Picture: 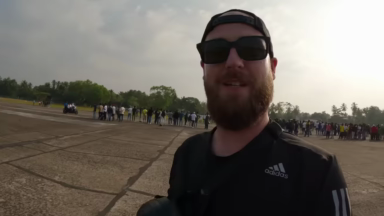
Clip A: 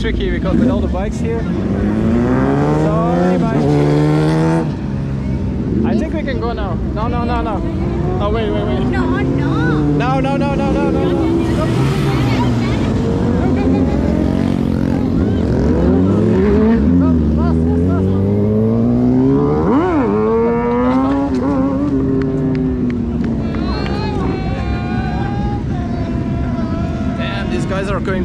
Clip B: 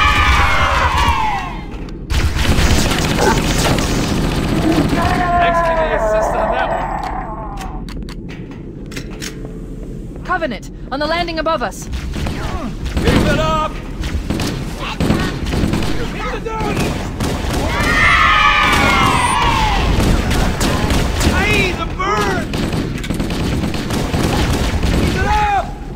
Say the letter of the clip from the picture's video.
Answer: A